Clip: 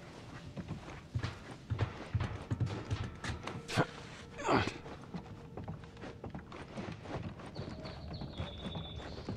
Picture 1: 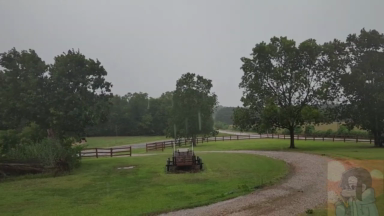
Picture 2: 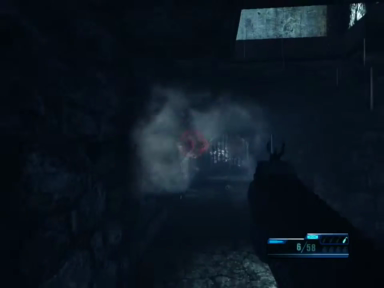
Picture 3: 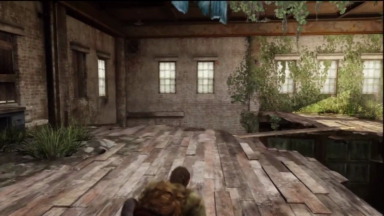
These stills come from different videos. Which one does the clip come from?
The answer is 3